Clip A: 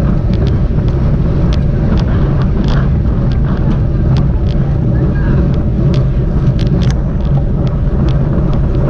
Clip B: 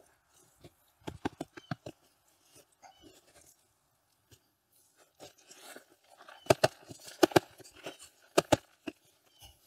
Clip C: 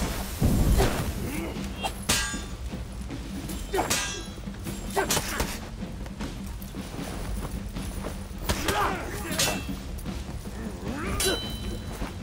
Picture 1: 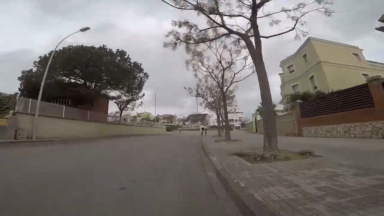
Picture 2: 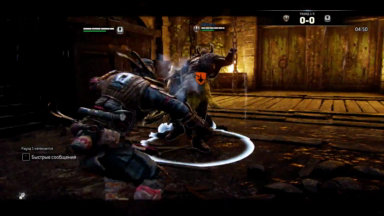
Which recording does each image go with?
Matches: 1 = A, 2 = C